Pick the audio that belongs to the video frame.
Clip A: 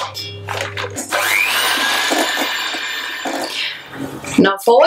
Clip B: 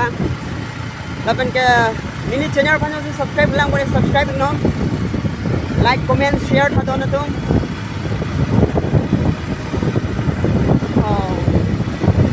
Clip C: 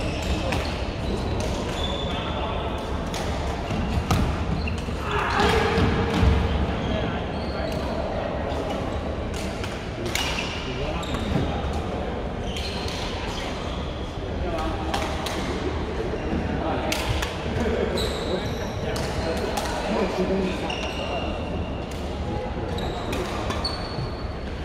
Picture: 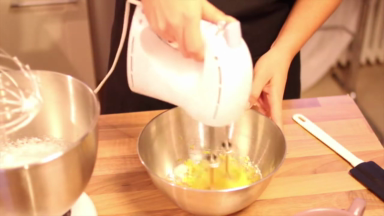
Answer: A